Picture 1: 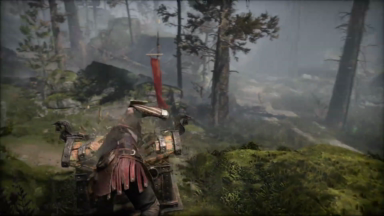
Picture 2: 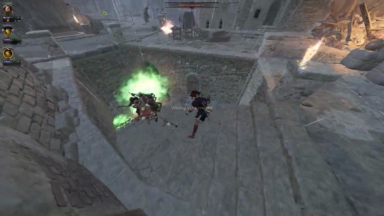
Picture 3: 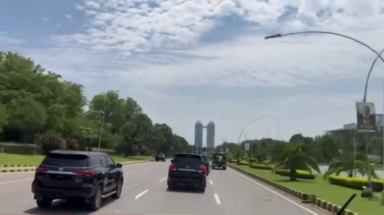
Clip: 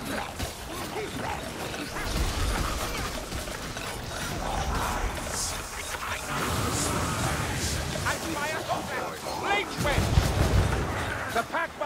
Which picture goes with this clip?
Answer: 2